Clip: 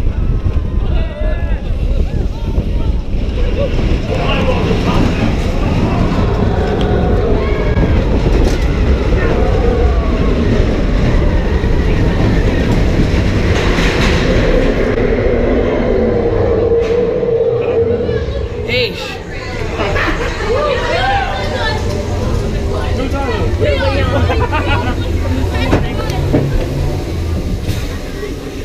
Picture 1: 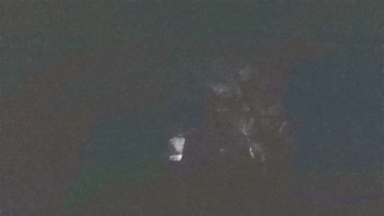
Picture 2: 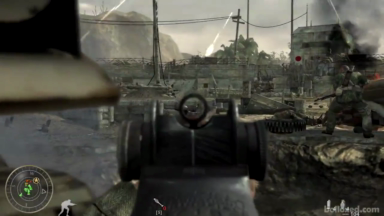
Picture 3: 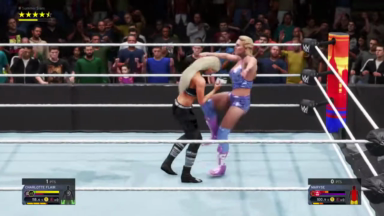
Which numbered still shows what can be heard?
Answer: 1